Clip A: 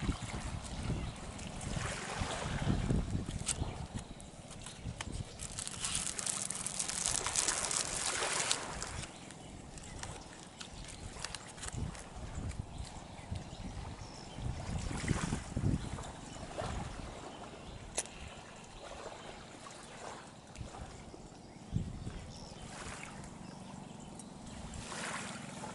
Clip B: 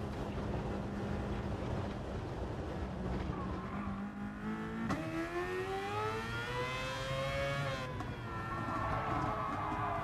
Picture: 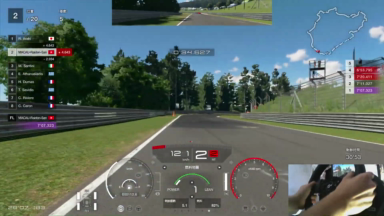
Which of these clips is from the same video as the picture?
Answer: B